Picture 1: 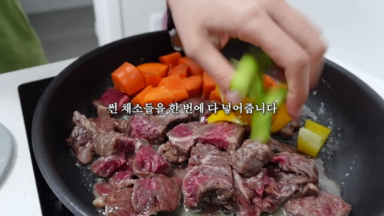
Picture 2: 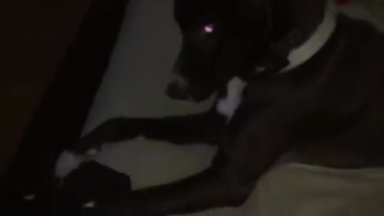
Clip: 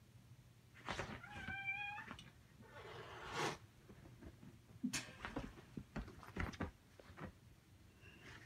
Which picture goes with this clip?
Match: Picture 2